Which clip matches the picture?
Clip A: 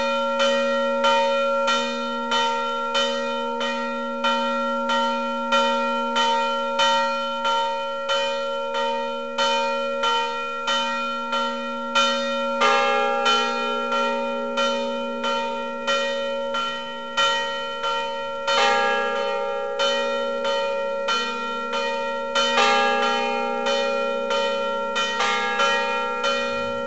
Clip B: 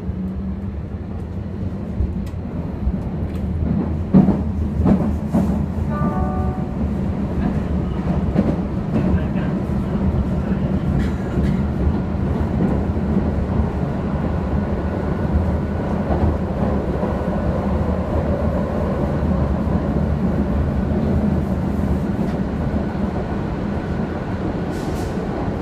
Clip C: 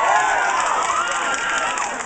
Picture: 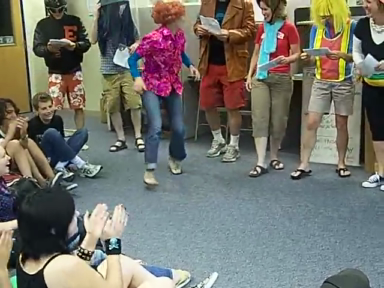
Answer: C